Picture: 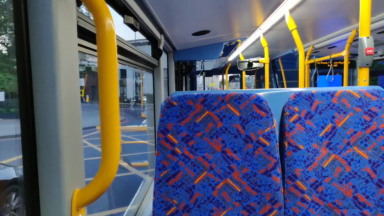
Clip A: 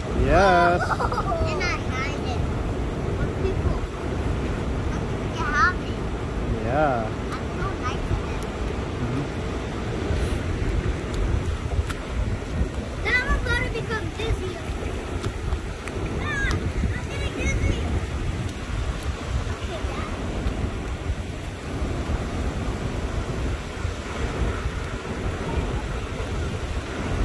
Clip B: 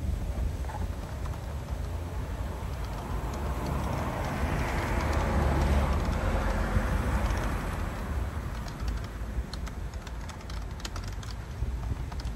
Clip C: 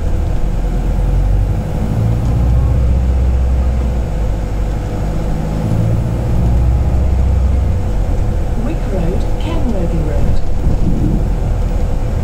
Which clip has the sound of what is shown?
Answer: C